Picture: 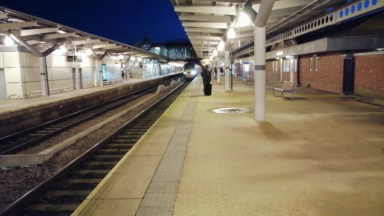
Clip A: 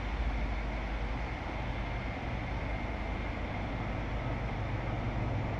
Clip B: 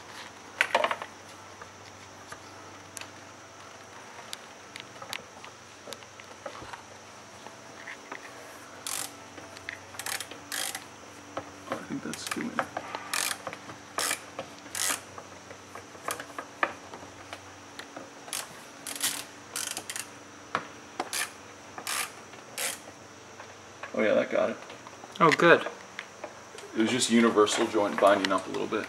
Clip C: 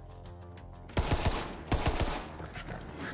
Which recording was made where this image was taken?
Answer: A